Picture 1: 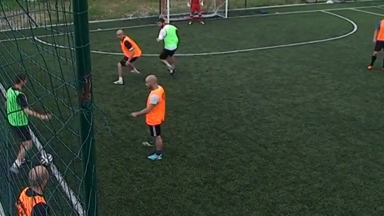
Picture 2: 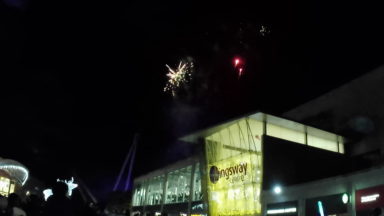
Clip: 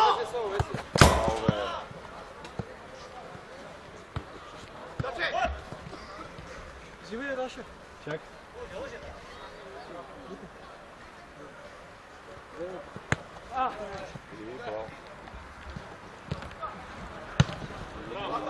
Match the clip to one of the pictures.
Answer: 1